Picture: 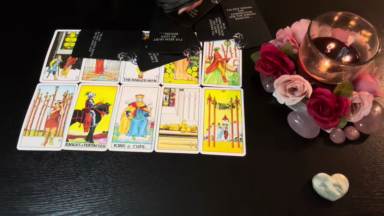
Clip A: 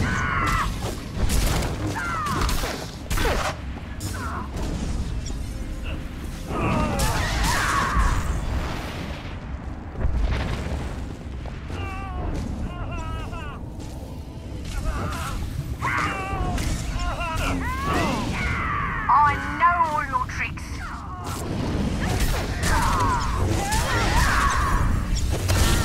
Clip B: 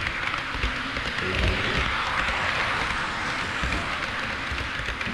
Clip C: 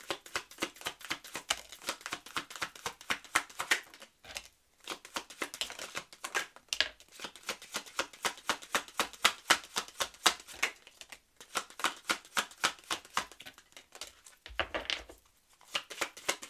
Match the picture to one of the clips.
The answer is C